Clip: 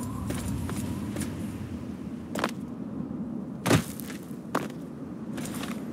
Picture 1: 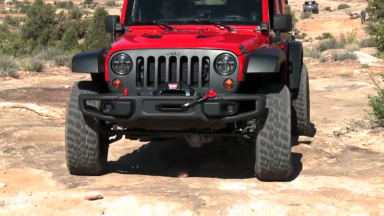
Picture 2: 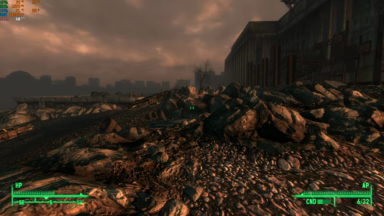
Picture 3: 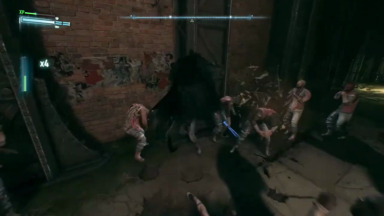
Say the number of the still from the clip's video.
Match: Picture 2